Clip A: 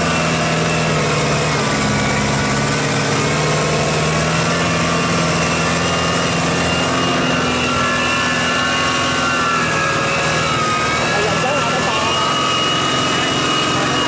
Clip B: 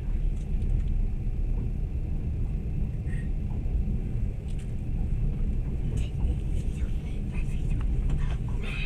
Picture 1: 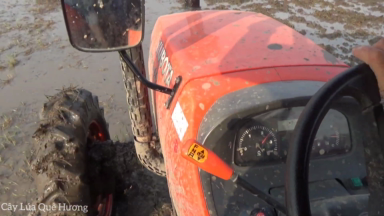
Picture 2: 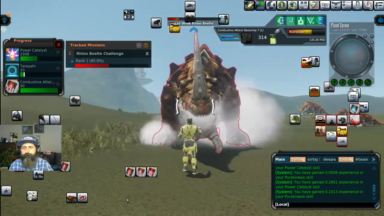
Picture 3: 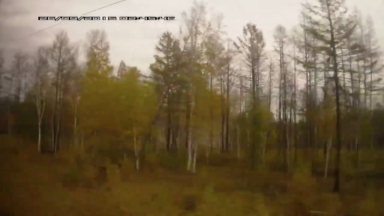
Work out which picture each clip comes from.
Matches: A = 1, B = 3